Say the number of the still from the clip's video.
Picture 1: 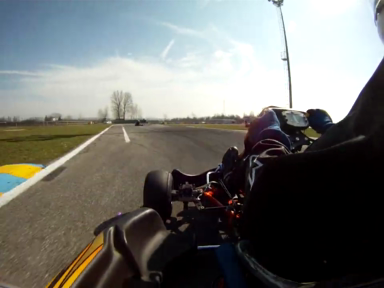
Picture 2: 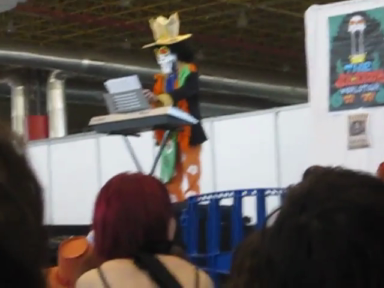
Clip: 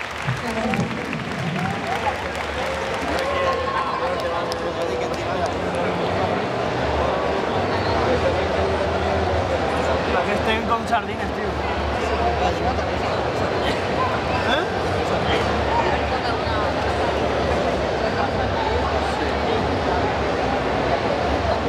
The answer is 2